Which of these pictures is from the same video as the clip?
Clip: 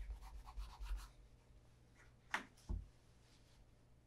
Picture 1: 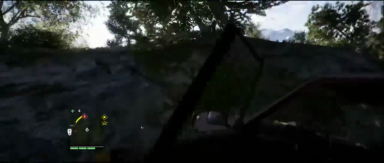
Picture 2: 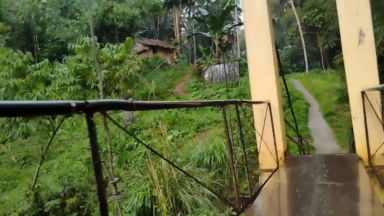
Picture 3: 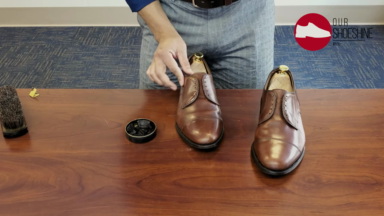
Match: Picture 3